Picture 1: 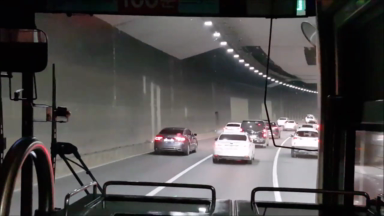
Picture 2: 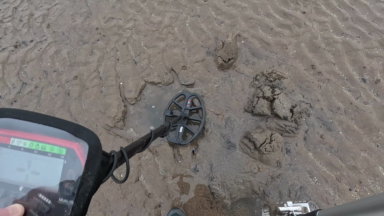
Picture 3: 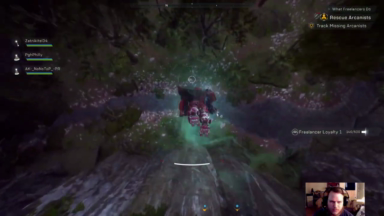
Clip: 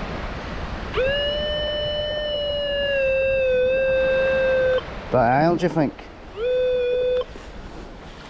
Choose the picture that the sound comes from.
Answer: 2